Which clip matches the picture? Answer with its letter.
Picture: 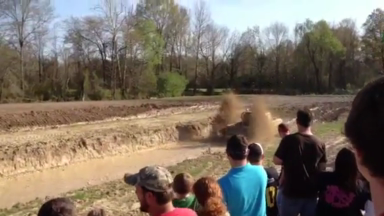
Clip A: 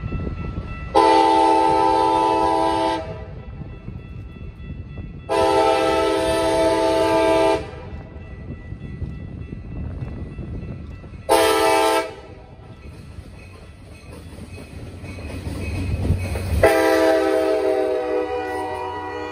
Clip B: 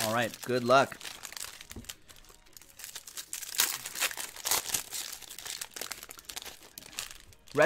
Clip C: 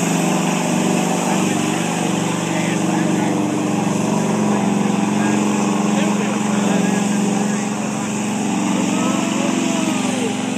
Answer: C